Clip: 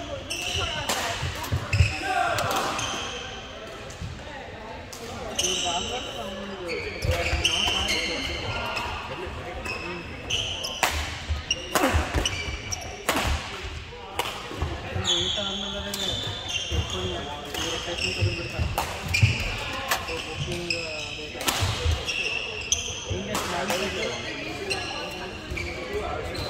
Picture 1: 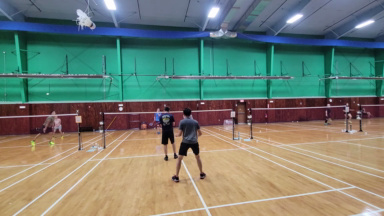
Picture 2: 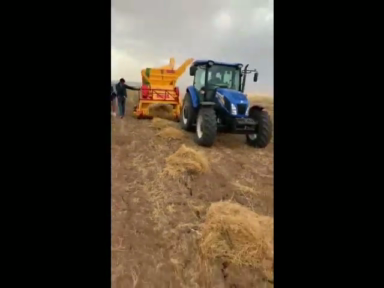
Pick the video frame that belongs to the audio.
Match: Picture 1